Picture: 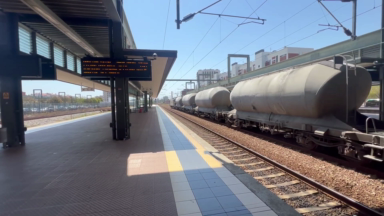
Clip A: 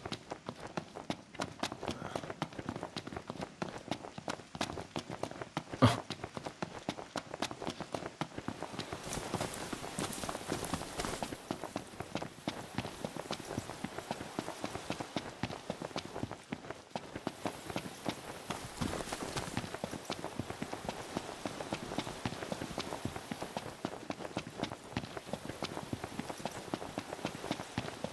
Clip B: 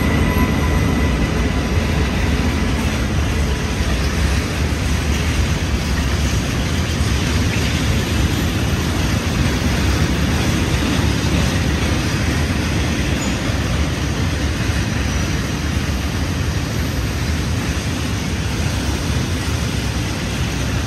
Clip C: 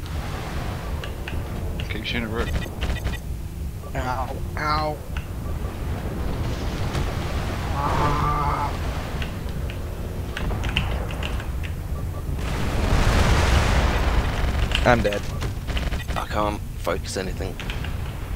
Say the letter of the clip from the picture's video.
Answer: B